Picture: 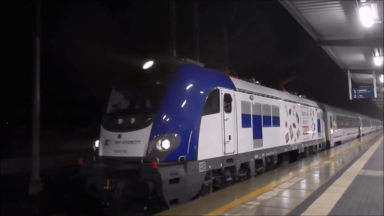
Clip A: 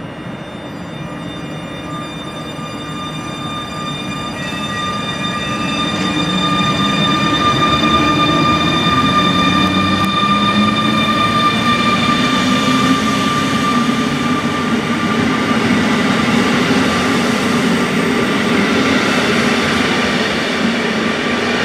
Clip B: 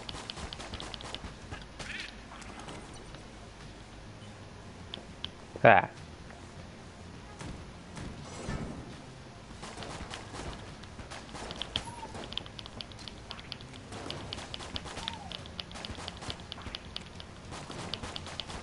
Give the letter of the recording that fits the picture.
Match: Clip A